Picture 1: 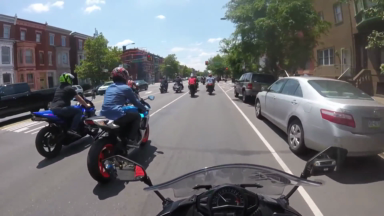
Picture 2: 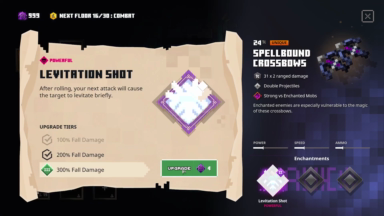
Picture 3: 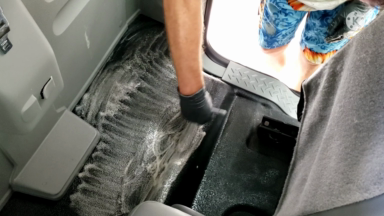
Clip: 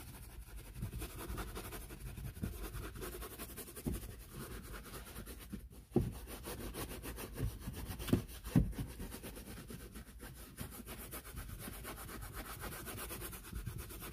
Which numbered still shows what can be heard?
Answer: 3